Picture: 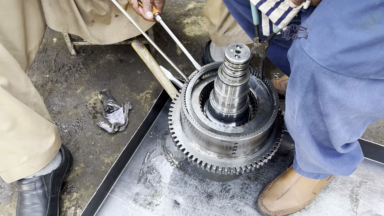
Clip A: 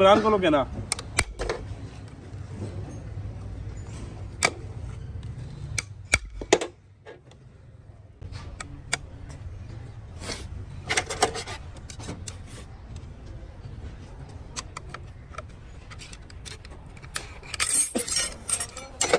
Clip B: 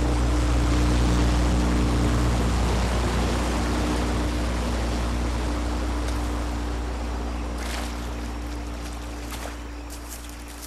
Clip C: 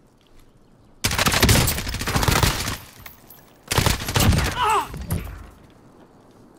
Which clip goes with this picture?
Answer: A